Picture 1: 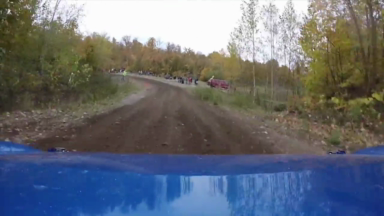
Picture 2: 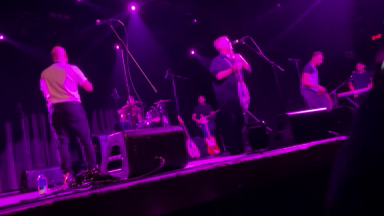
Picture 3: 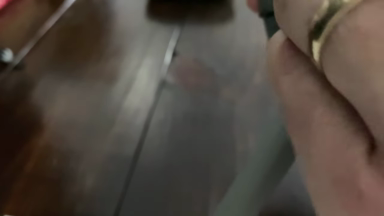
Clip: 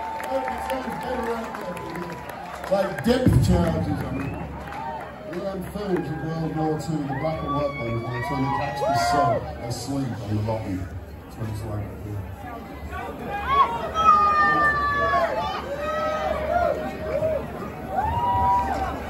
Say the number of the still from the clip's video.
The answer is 2